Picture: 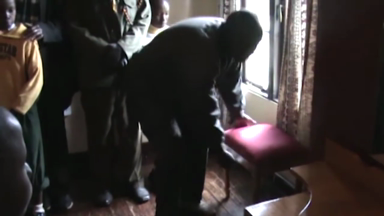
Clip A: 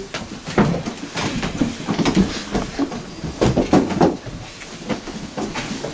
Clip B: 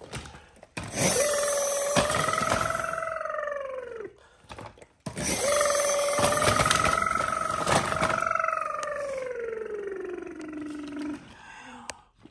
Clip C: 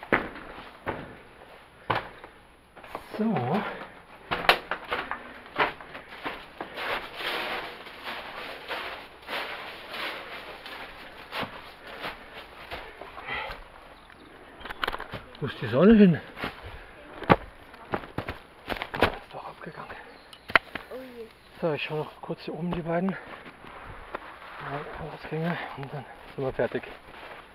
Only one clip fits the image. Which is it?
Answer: A